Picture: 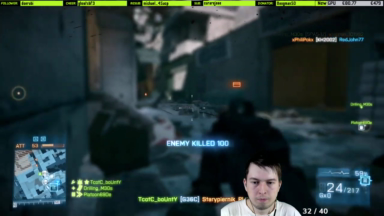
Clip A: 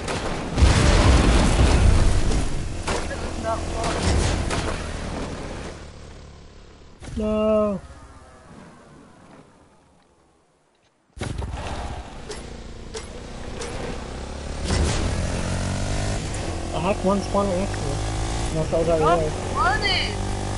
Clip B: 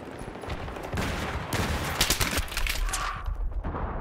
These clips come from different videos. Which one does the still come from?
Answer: B